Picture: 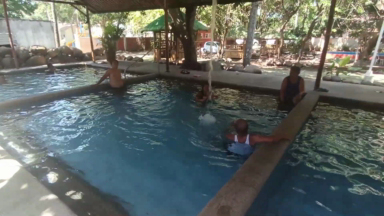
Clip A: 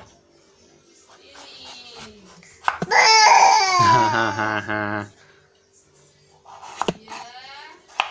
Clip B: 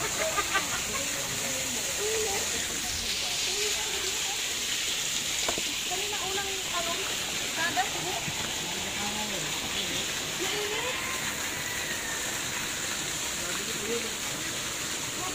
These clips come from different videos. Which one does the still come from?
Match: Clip B